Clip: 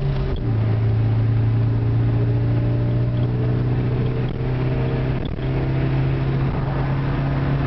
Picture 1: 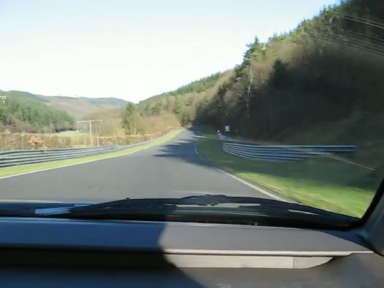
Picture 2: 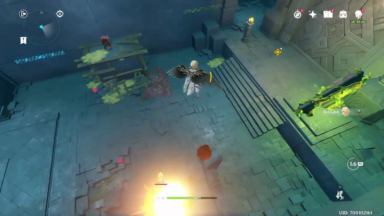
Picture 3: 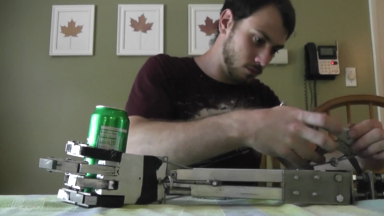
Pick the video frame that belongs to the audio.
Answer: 1